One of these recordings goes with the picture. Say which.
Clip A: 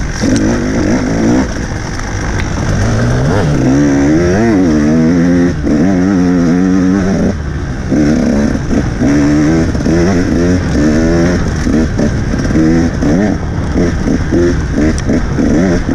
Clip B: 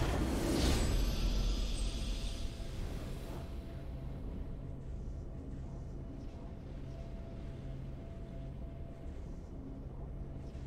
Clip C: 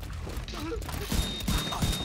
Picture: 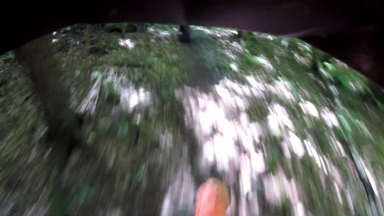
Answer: A